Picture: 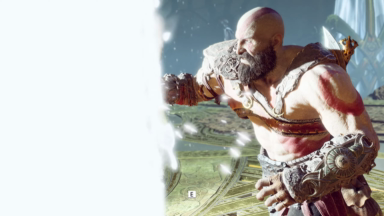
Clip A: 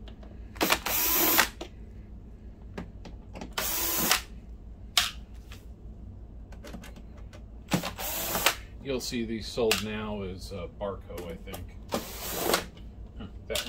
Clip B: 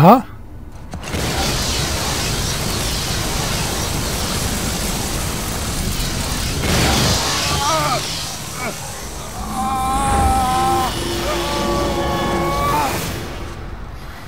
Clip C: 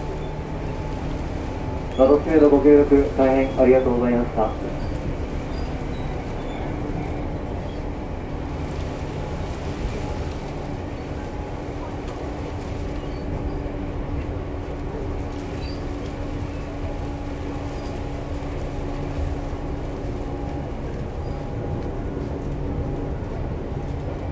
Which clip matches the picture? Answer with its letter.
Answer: B